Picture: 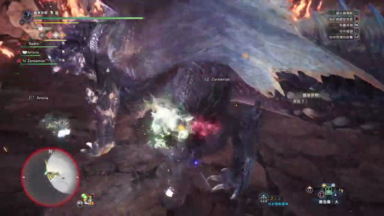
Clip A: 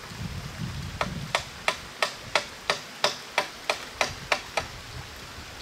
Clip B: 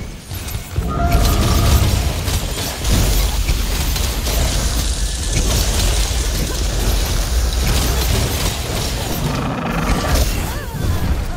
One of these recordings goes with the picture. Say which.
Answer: B